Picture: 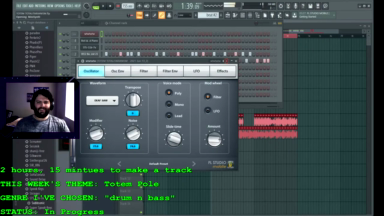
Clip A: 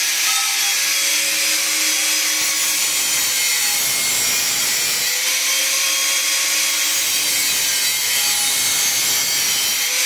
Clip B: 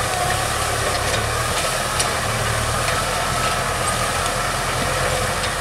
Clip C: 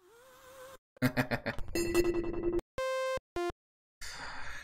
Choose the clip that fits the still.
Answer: C